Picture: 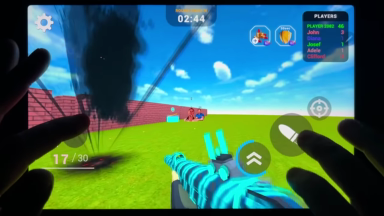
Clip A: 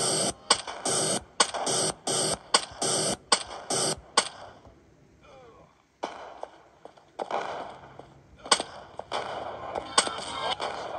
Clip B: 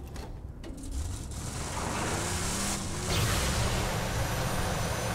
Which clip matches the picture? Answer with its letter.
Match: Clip A